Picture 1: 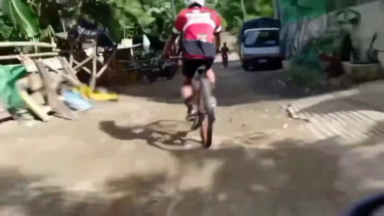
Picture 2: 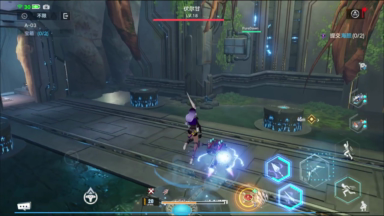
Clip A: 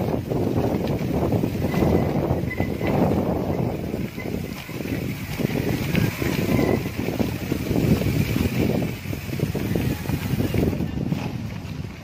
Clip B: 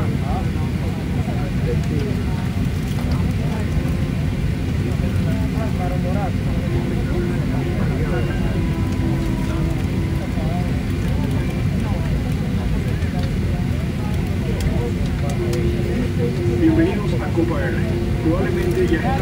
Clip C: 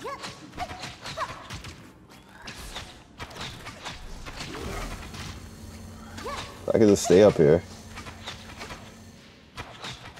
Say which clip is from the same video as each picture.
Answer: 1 A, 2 C